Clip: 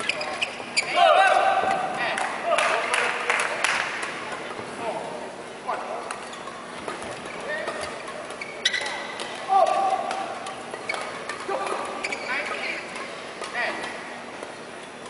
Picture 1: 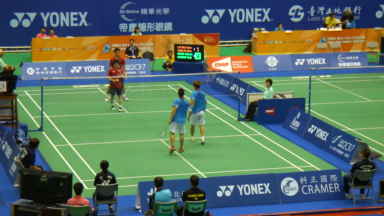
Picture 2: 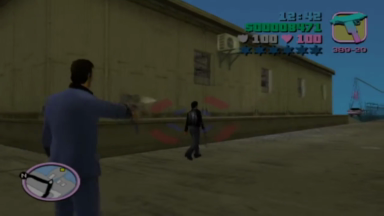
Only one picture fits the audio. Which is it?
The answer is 1